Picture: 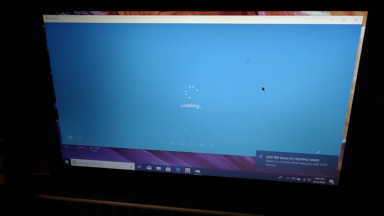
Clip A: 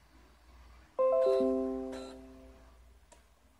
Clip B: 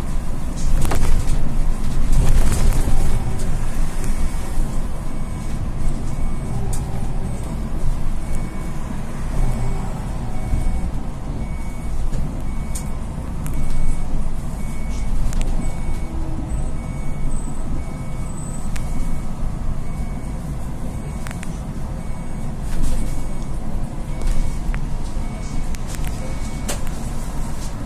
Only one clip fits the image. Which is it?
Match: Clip A